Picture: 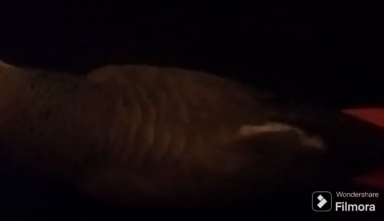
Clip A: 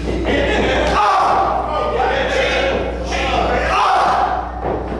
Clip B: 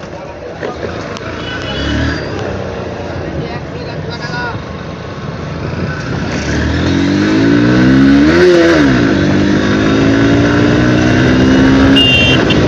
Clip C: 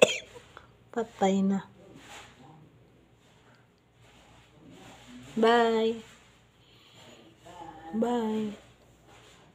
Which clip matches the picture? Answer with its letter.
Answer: C